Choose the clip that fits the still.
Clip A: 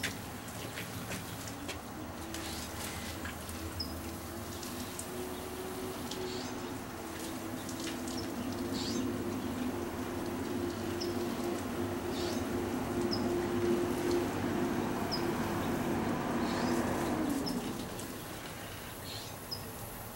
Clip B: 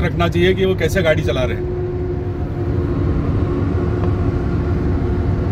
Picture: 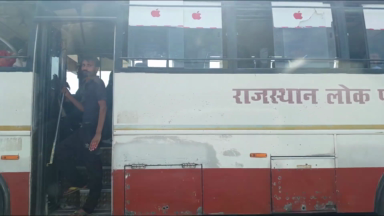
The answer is B